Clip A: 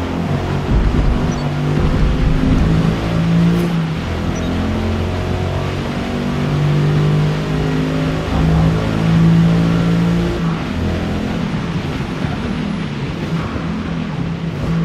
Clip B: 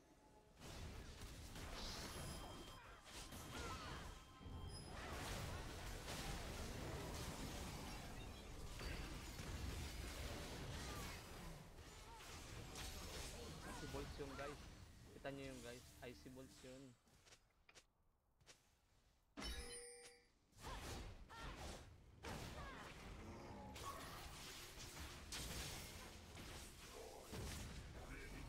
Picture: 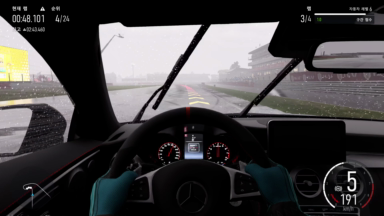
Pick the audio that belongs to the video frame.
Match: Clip A